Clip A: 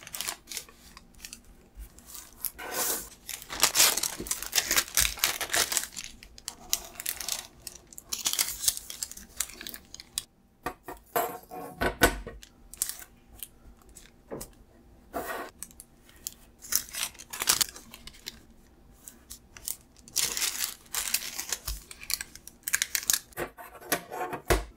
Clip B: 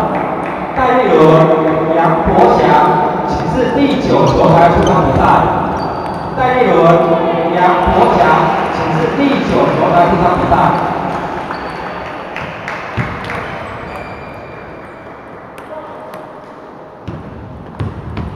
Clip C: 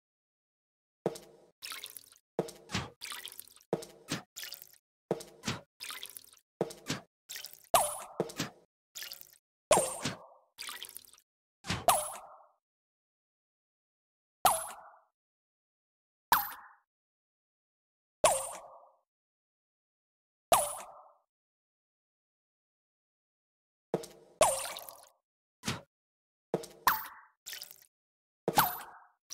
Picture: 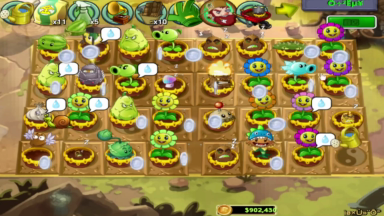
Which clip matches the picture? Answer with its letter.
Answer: C